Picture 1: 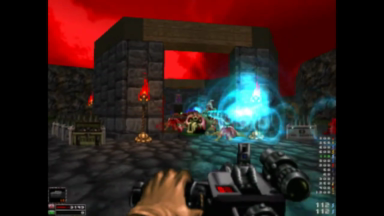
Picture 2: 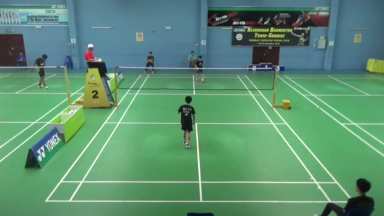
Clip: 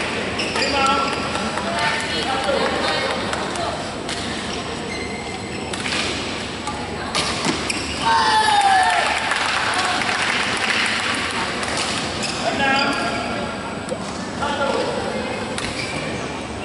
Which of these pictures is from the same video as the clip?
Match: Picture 2